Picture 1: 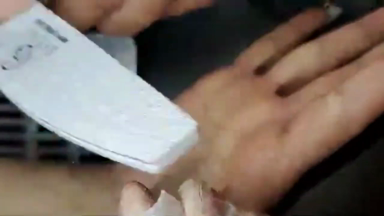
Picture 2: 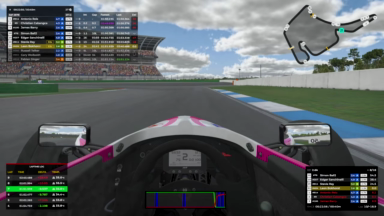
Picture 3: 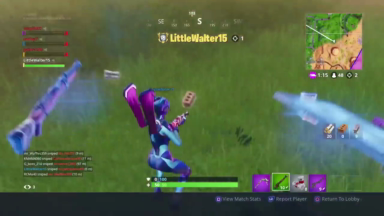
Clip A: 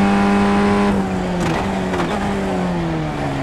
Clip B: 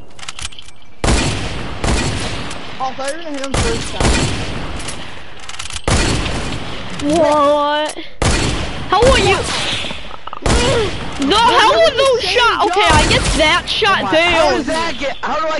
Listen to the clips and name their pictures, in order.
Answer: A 2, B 3